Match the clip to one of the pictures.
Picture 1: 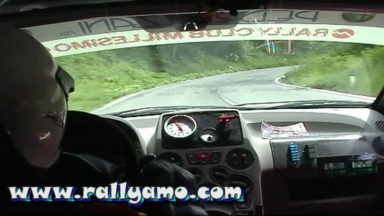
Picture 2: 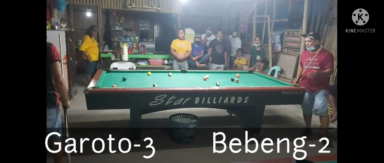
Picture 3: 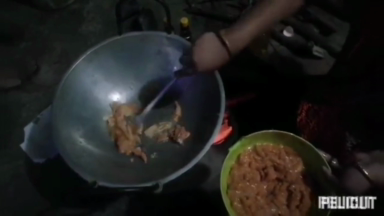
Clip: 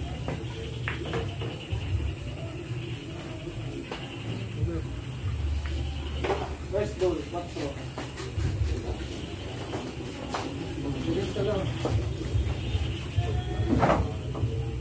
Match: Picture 2